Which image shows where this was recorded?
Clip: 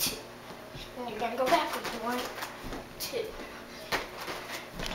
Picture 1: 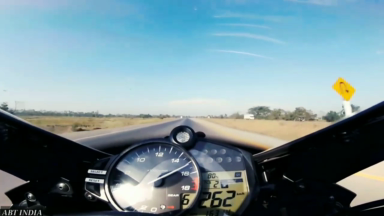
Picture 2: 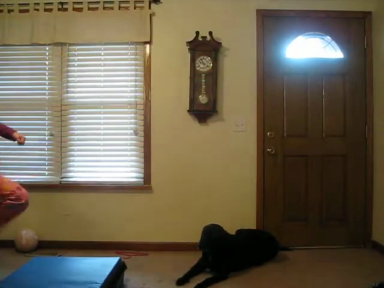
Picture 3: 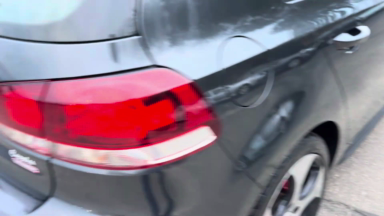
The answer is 2